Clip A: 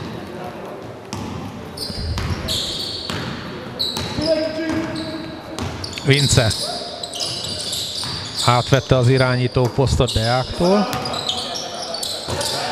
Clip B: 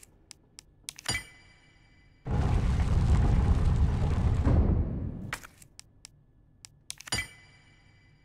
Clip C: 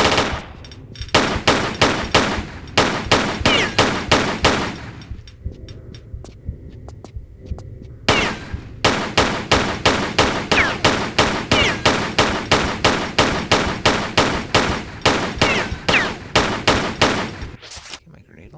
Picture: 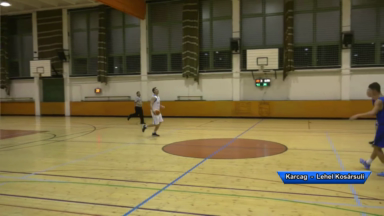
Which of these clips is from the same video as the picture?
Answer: A